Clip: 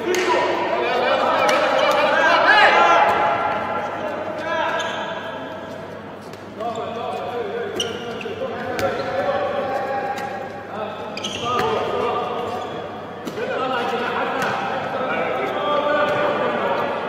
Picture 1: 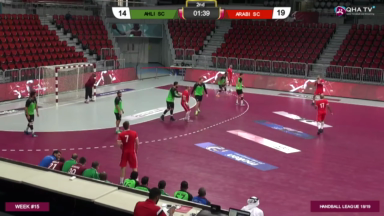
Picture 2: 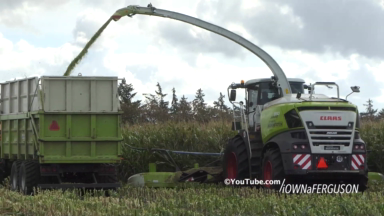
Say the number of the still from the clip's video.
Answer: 1